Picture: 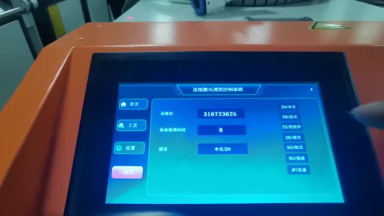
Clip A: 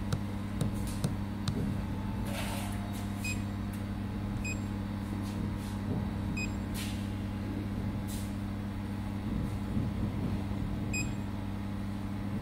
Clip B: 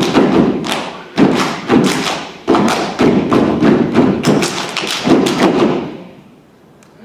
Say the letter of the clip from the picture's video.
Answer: A